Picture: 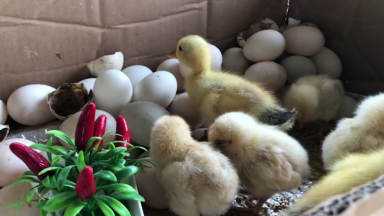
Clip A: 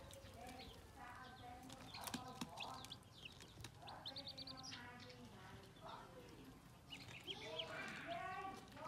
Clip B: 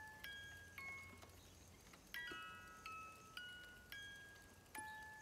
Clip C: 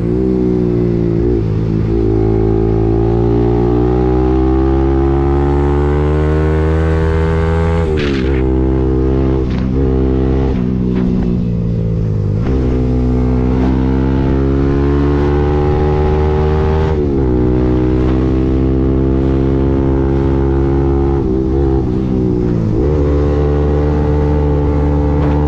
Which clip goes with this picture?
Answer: A